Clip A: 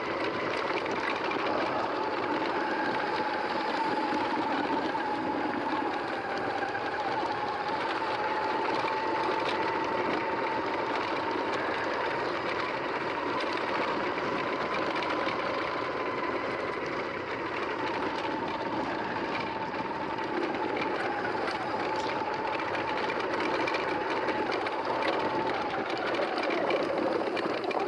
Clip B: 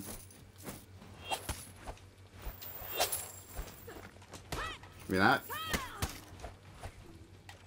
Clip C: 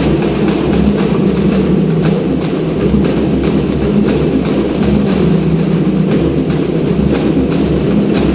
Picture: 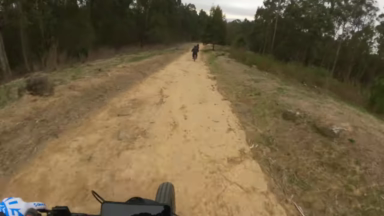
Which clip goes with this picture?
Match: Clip A